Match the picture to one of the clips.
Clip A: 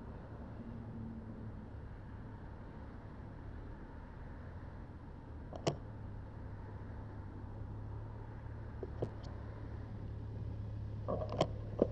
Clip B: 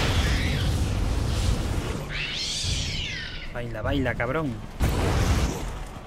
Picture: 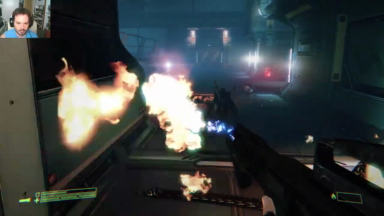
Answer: B